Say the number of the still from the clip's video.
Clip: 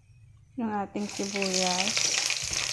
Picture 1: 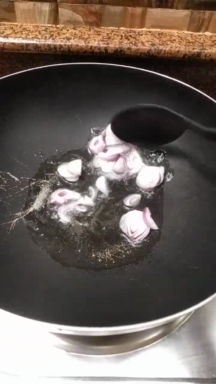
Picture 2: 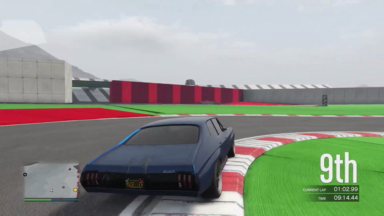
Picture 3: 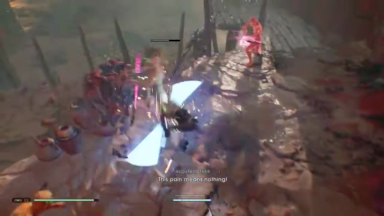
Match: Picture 1